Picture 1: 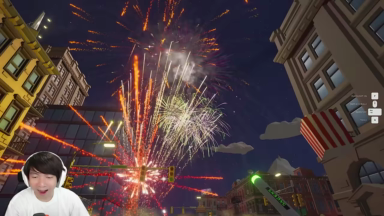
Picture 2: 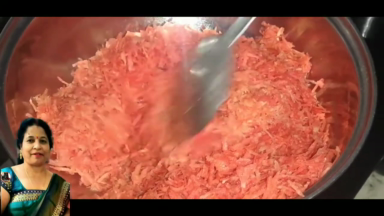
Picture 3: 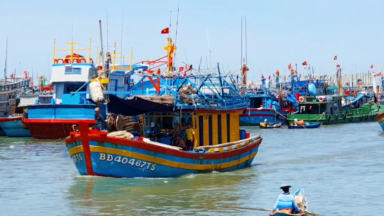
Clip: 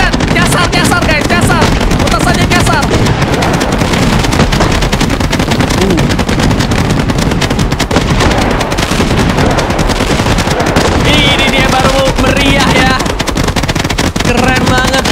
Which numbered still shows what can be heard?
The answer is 1